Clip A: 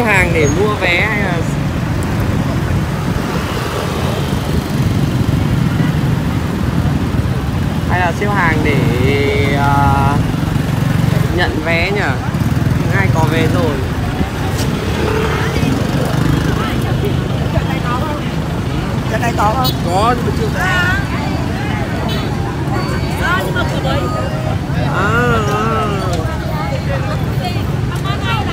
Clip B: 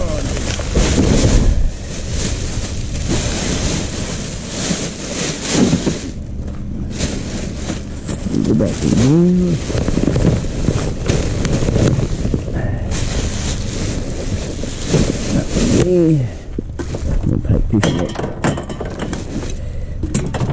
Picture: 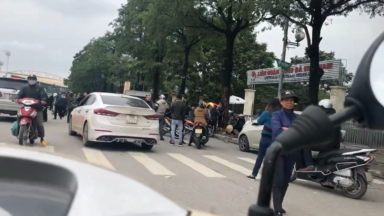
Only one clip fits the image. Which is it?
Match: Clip A